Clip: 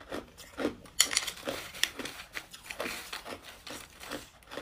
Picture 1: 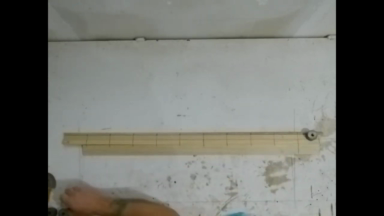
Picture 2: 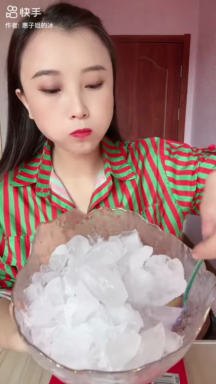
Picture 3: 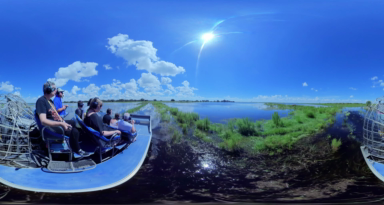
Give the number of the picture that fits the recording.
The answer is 2